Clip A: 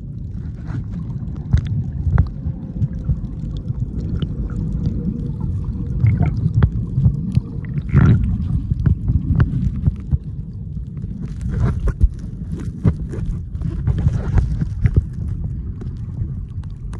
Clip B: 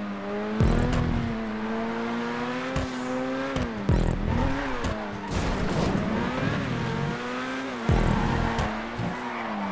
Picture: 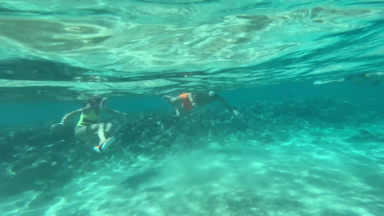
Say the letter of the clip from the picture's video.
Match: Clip A